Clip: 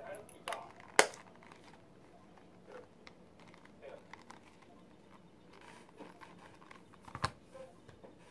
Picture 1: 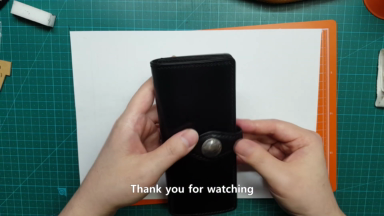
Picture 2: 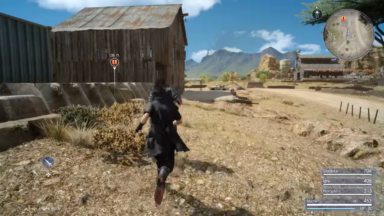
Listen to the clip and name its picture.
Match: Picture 1